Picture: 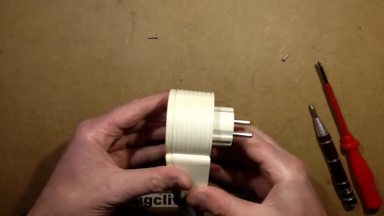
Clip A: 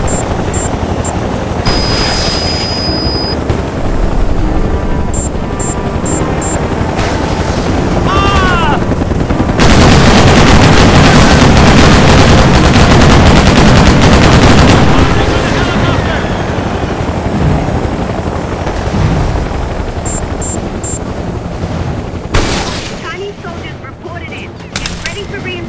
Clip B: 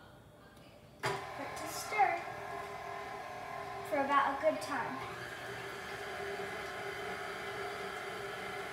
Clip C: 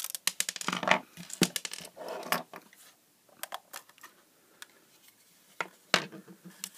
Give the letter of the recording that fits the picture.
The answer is C